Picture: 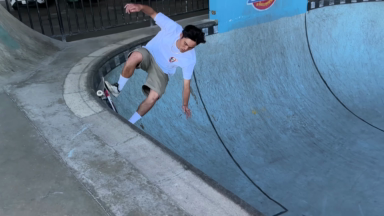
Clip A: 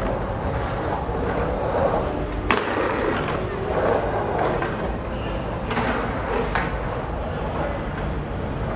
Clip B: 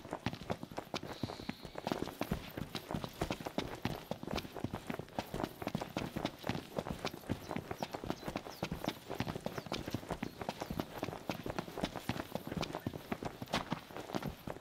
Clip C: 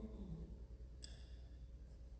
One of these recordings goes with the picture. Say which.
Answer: A